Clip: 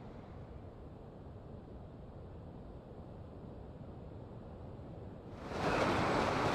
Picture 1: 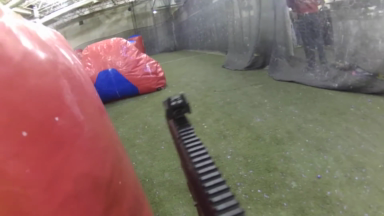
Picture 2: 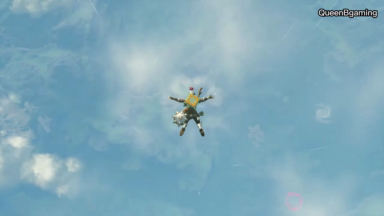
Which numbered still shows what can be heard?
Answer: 2